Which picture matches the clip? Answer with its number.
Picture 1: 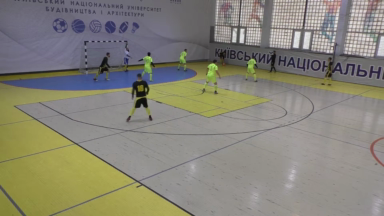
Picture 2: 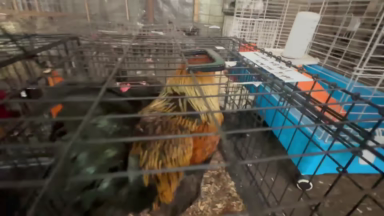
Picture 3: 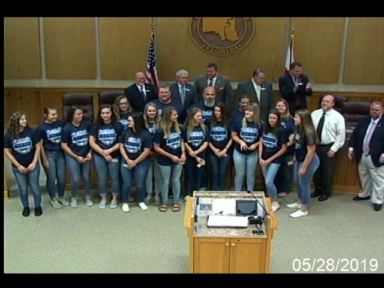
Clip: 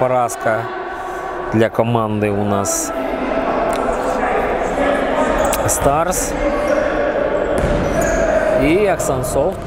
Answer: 1